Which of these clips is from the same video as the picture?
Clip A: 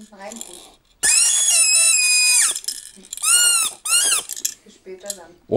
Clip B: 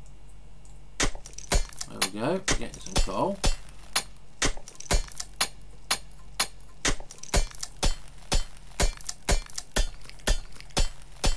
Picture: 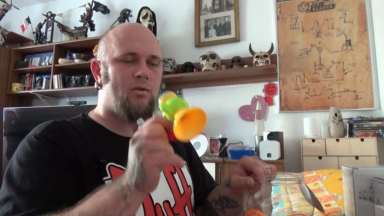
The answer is A